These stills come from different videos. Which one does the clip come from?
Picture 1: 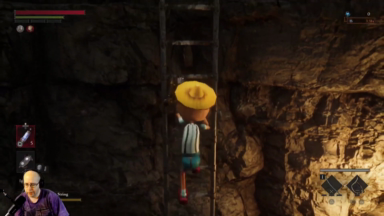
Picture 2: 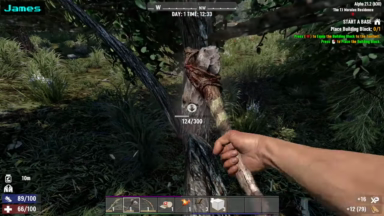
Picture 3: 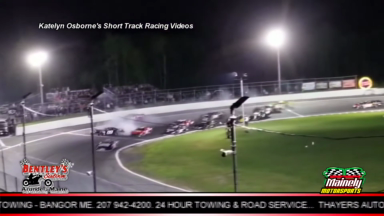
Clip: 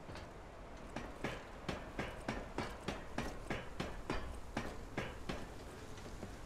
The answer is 1